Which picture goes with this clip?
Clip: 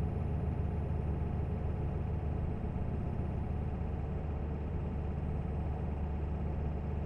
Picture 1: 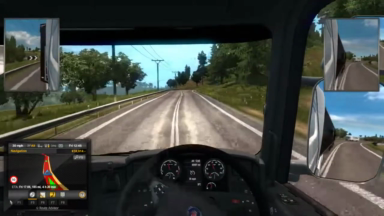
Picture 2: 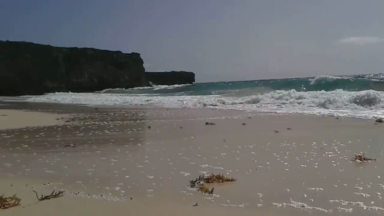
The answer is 1